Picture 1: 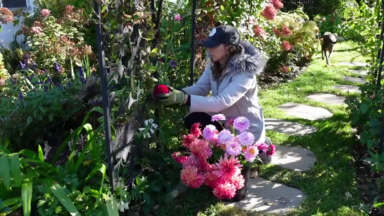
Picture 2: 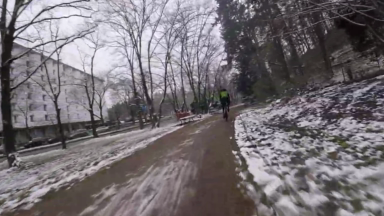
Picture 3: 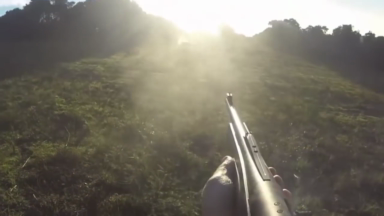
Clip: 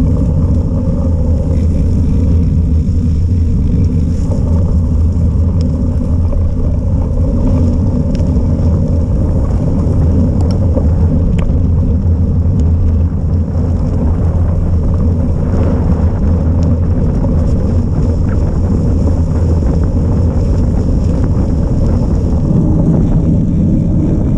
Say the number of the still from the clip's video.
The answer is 2